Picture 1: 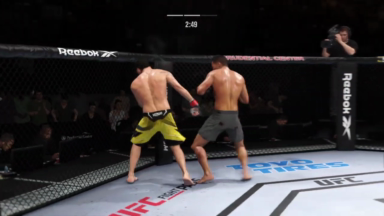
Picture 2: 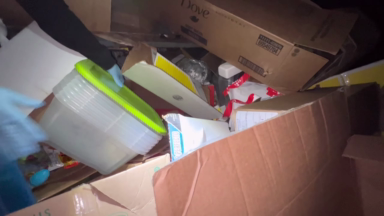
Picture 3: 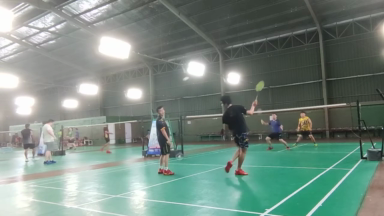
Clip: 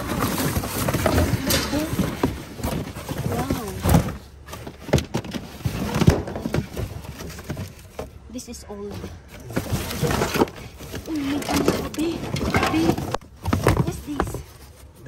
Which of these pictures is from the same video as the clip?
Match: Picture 2